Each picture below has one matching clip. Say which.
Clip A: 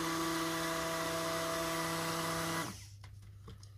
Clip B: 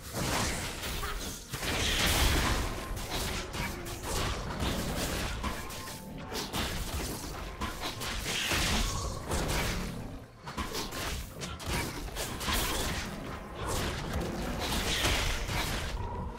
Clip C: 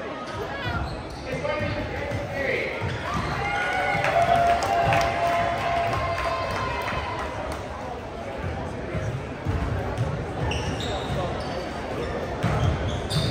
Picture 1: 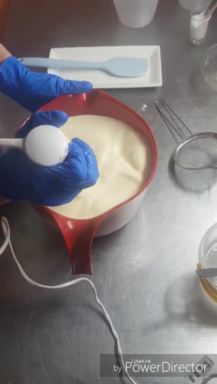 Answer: A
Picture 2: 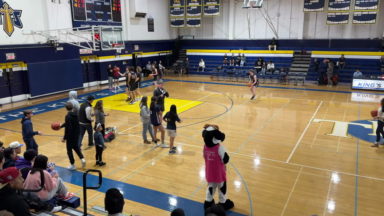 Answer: C